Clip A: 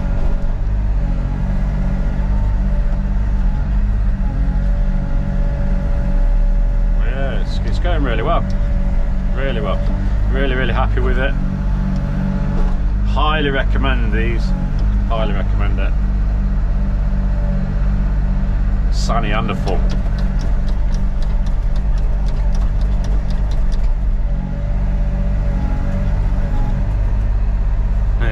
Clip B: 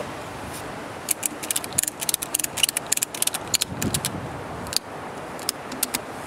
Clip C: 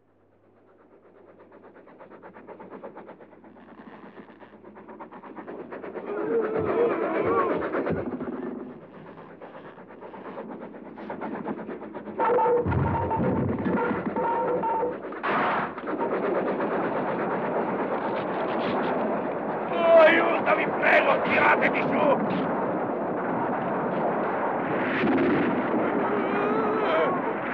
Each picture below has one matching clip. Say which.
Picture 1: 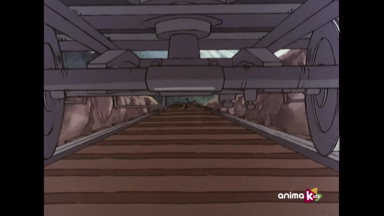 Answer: C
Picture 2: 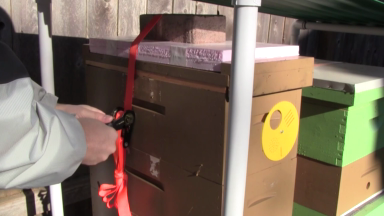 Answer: B